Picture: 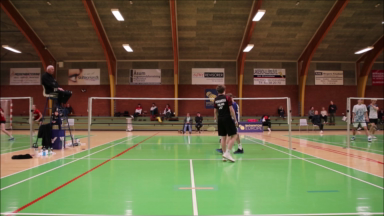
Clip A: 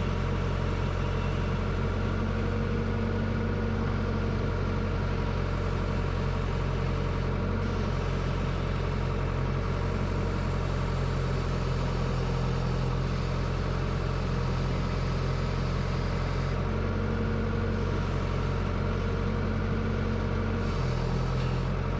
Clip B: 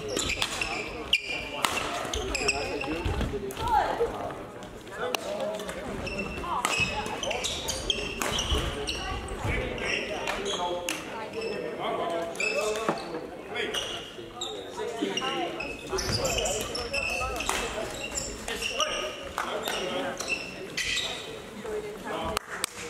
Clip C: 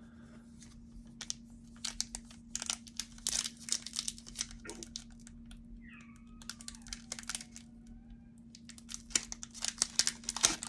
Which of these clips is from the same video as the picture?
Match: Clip B